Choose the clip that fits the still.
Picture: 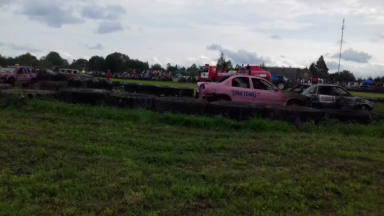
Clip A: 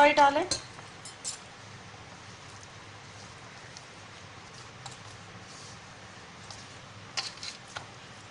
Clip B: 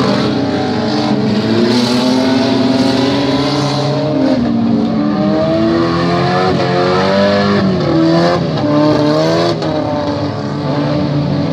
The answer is B